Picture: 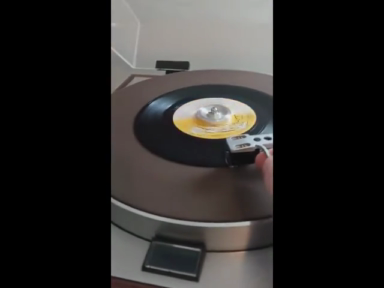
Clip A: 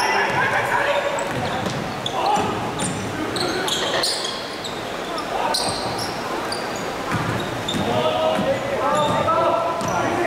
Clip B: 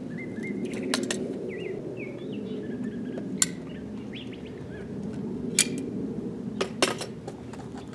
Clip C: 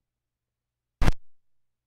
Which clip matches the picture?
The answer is C